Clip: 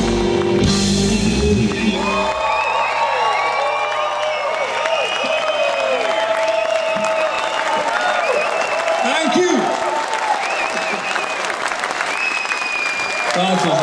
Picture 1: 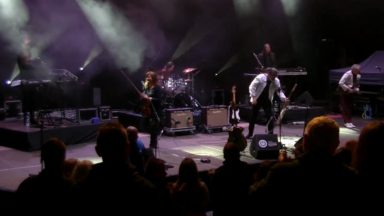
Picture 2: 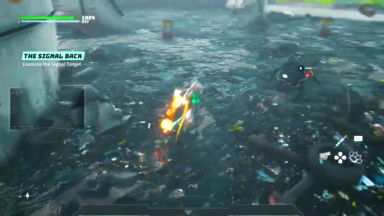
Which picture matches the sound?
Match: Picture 1